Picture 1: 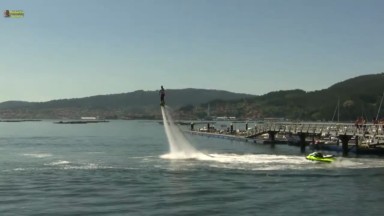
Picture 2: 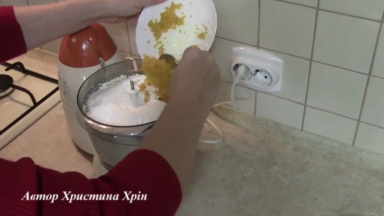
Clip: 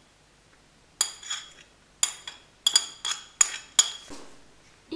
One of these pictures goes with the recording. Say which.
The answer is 2